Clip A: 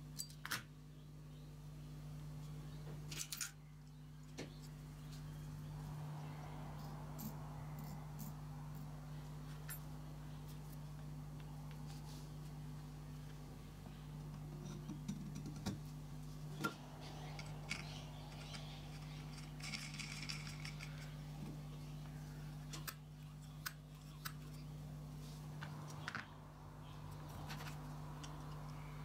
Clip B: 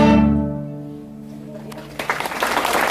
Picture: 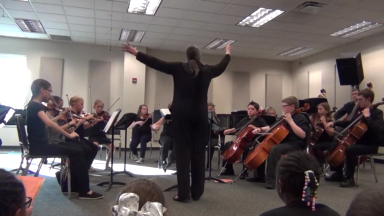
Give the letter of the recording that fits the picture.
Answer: B